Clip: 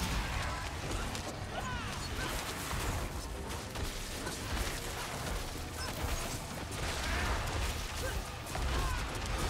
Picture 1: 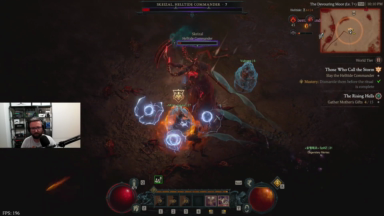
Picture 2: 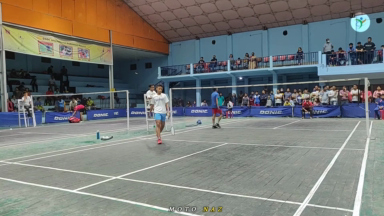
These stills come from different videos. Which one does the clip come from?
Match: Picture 1